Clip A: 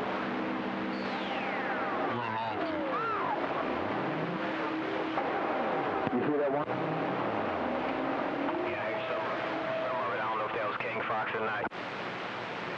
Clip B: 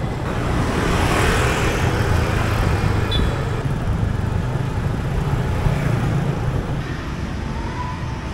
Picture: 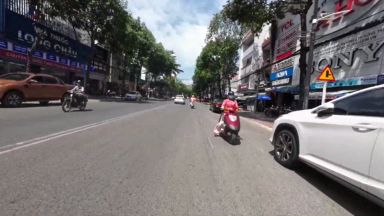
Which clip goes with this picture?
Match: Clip B